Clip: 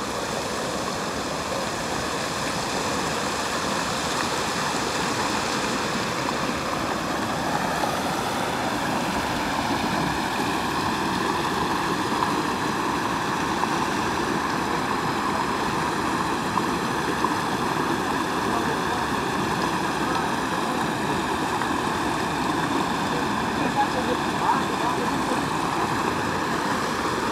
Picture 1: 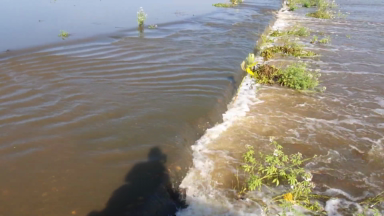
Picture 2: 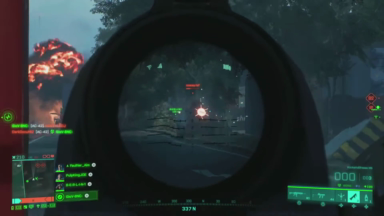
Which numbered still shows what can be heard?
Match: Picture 1